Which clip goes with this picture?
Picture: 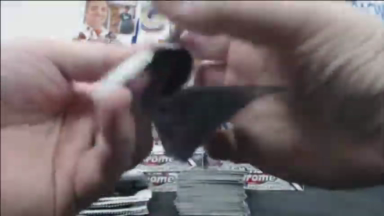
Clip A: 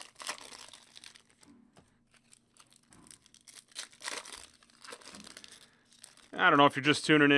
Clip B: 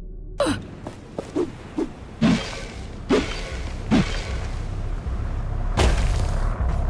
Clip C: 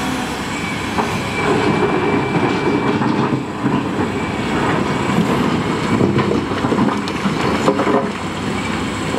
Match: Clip A